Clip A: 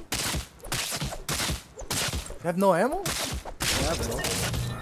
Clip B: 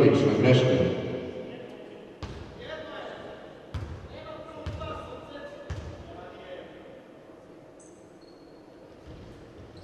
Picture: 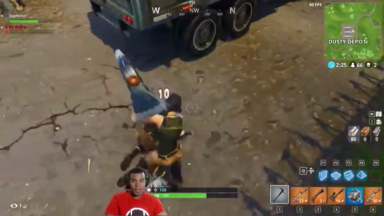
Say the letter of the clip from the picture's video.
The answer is A